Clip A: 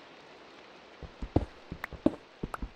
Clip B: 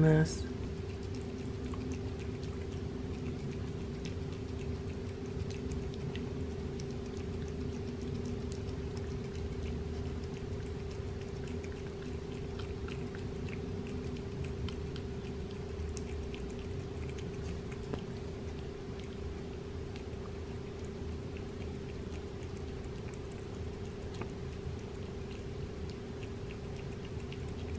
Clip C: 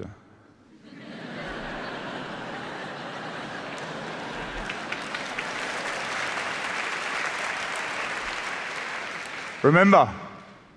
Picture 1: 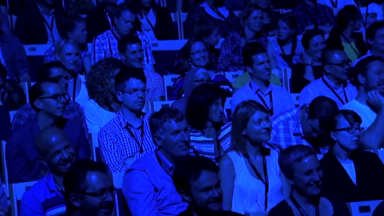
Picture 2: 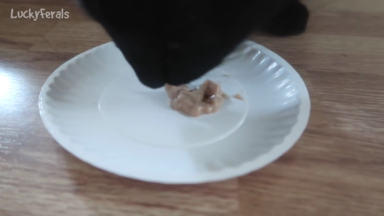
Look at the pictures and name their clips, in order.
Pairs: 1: C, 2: B